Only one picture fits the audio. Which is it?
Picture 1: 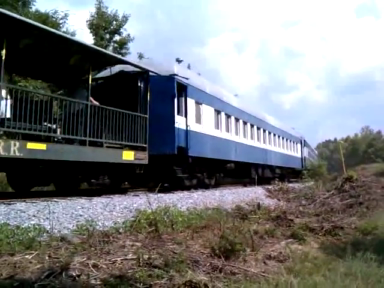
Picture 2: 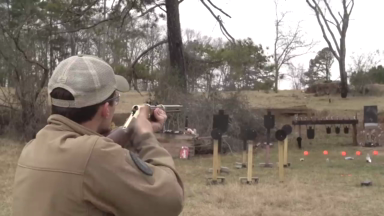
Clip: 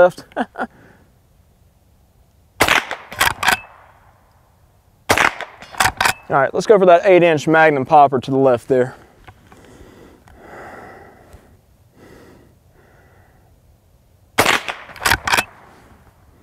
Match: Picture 2